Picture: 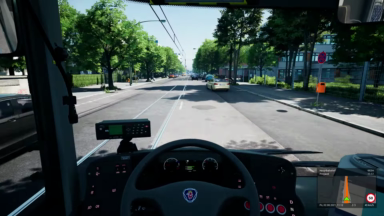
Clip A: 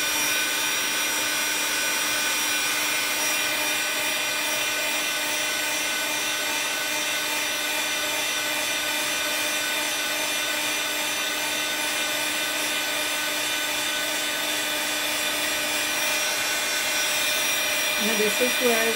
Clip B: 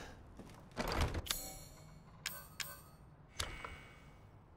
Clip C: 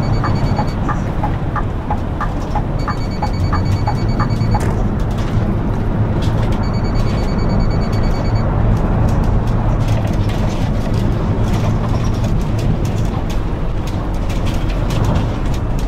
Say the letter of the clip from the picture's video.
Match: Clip C